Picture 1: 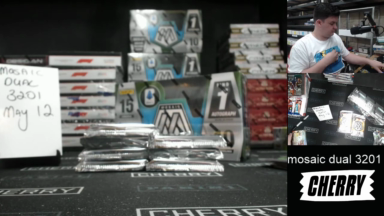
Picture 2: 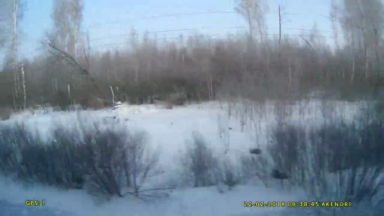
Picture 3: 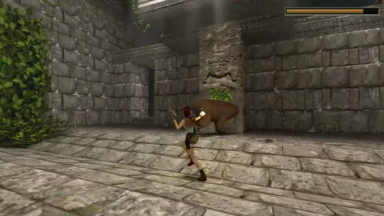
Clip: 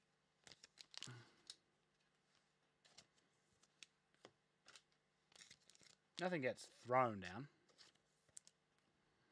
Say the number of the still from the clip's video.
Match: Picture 1